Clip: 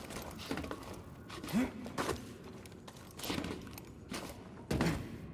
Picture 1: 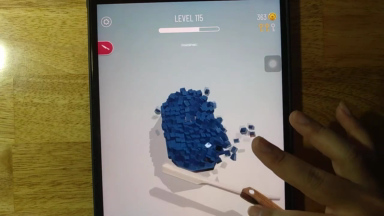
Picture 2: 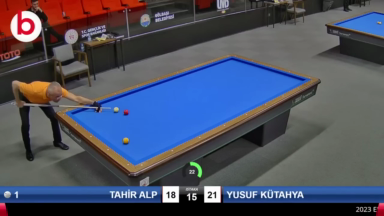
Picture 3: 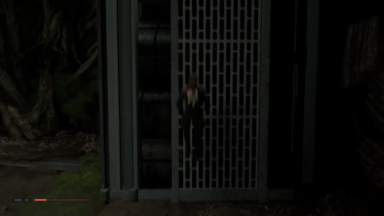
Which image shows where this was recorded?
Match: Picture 3